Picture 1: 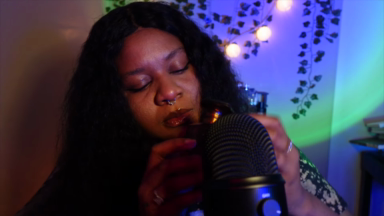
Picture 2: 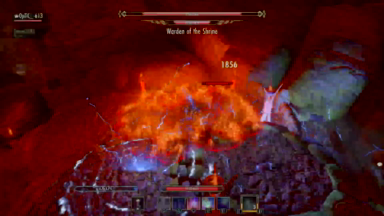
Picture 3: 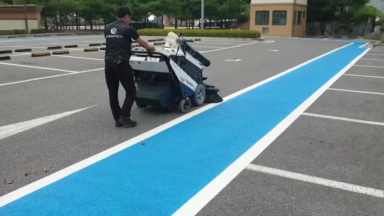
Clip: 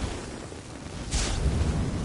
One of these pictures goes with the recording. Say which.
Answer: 2